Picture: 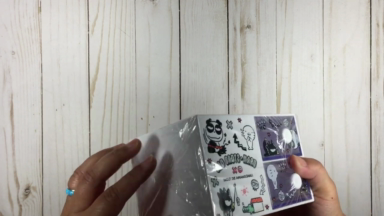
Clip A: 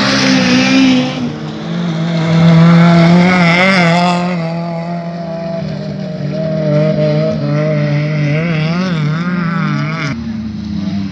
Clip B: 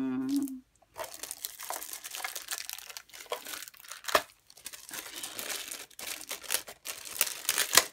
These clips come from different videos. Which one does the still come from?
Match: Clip B